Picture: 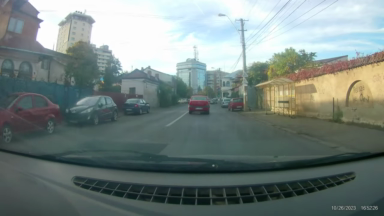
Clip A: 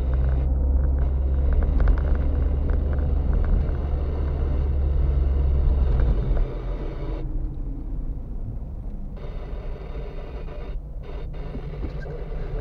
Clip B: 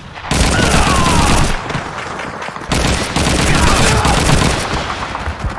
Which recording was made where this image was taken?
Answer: A